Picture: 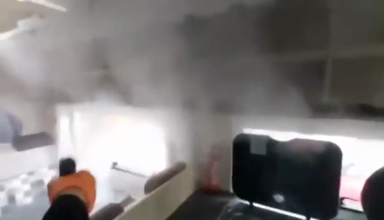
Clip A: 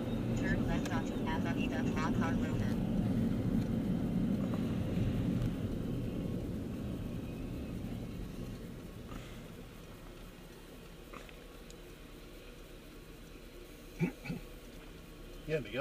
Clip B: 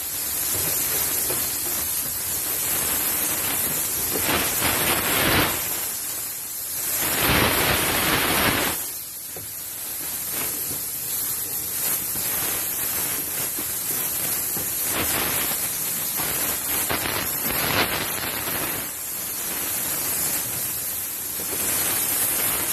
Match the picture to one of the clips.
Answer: B